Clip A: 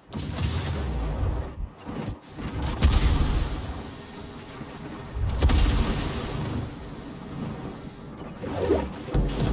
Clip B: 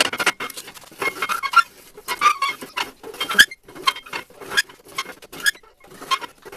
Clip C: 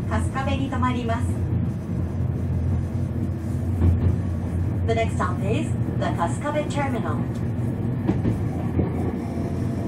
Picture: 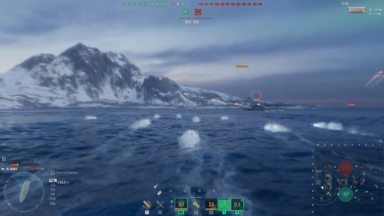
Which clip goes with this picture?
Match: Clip A